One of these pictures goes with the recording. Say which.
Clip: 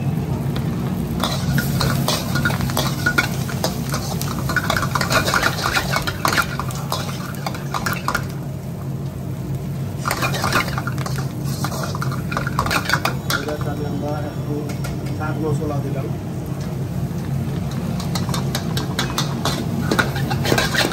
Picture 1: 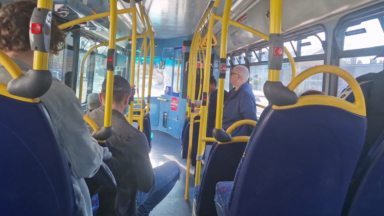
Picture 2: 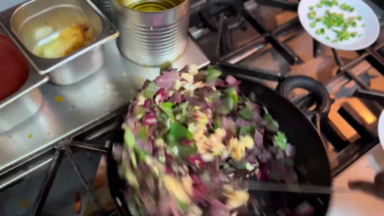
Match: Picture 2